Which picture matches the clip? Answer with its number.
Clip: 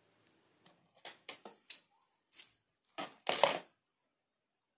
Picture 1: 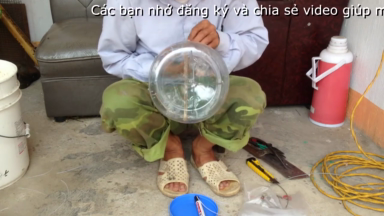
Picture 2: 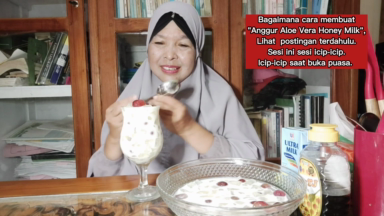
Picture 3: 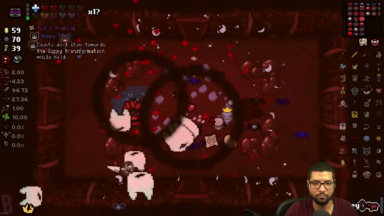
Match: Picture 2